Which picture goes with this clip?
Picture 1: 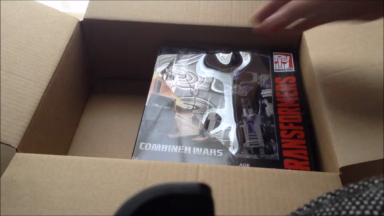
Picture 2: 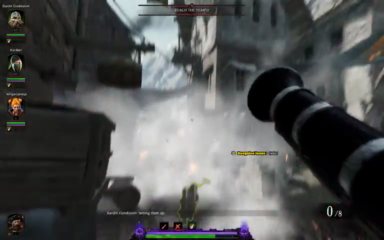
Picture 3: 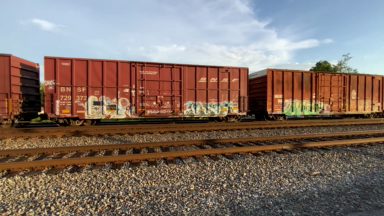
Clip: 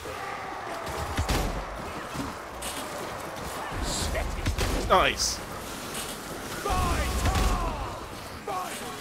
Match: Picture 2